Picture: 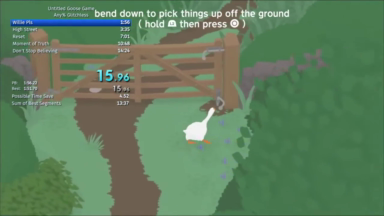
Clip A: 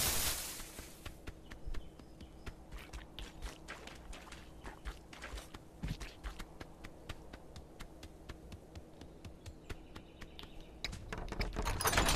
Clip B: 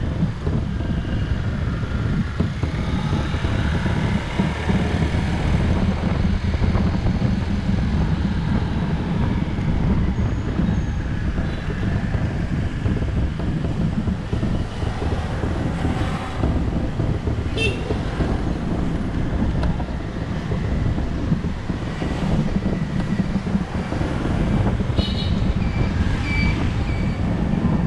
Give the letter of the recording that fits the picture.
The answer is A